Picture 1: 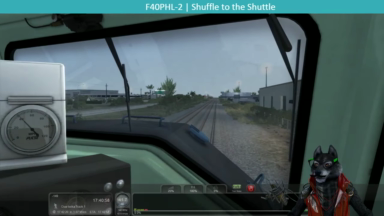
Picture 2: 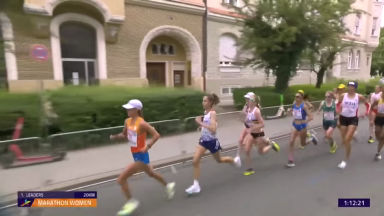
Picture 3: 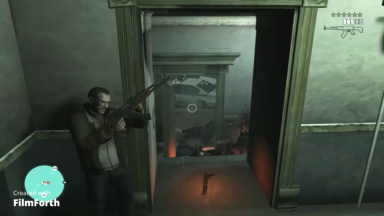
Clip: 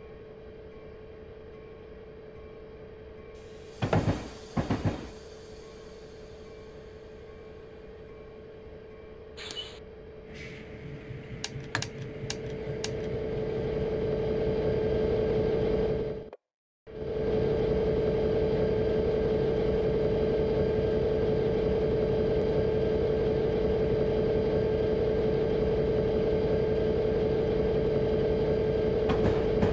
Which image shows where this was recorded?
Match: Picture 1